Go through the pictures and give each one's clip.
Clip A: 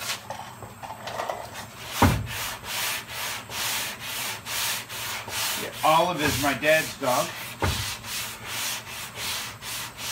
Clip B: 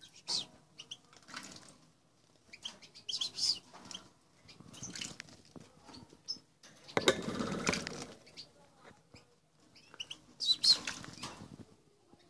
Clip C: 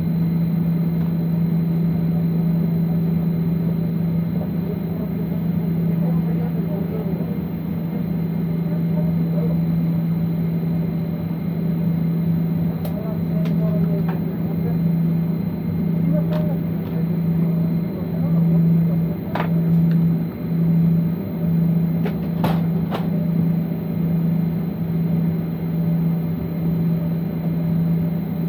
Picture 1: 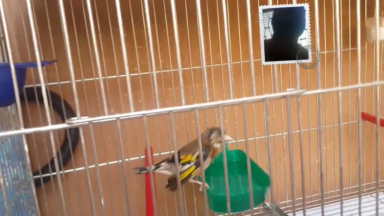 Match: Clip B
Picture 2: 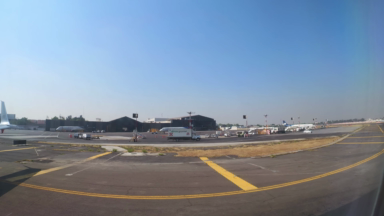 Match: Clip C